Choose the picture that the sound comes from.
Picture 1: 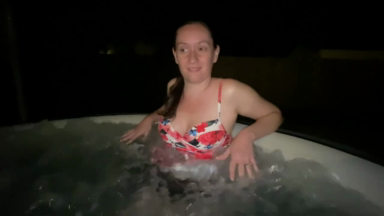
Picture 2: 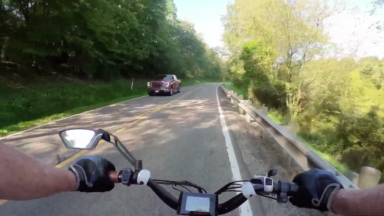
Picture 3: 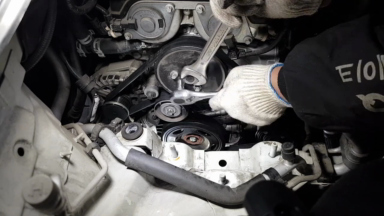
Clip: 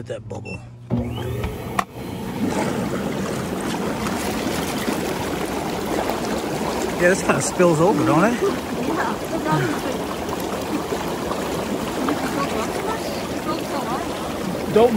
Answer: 1